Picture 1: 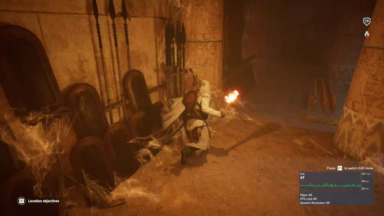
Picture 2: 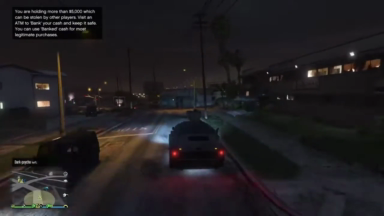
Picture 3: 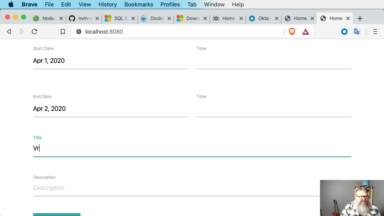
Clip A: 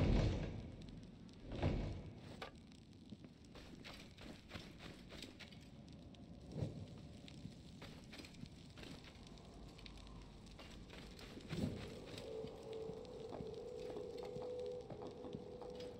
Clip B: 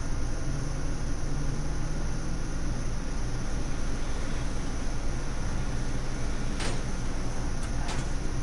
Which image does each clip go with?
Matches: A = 1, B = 2